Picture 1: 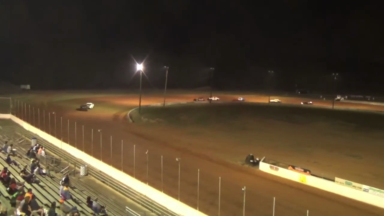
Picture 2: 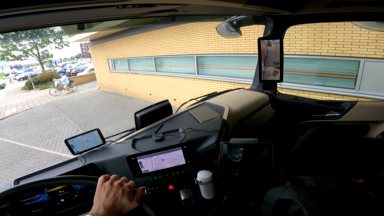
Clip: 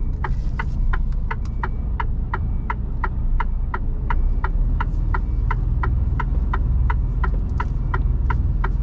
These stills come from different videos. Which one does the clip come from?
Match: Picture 2